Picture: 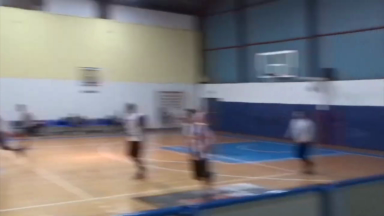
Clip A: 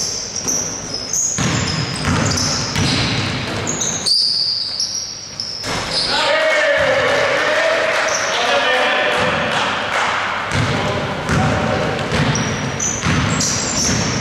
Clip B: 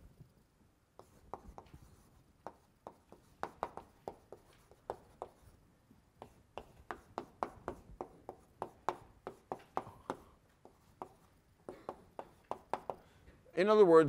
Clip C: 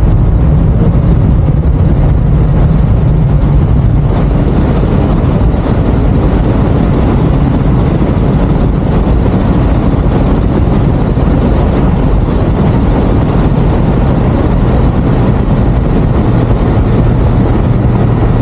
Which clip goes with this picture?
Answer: A